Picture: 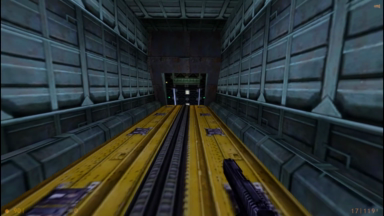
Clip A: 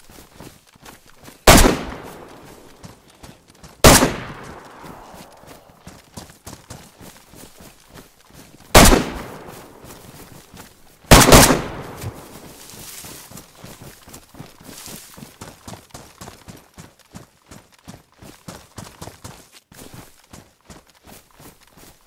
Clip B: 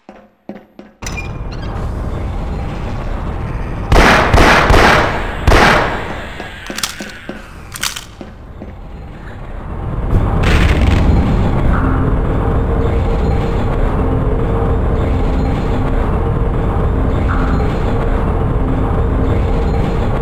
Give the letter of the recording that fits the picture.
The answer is B